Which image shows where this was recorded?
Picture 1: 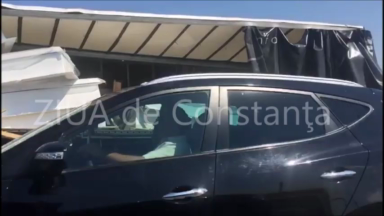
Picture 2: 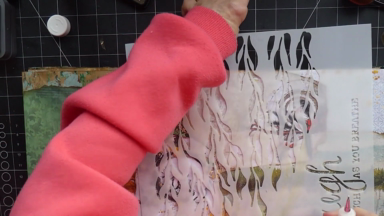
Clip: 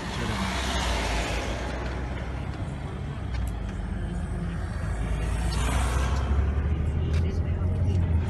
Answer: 1